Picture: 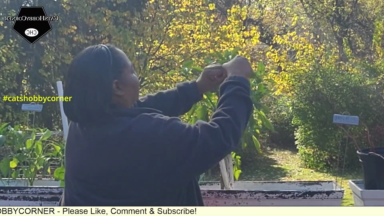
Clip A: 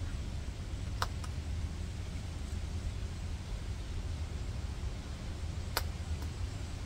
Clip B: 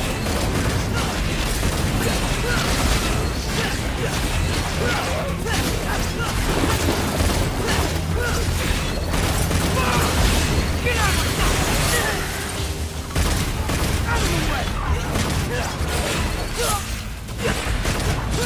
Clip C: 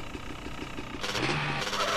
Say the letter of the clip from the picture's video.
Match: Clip A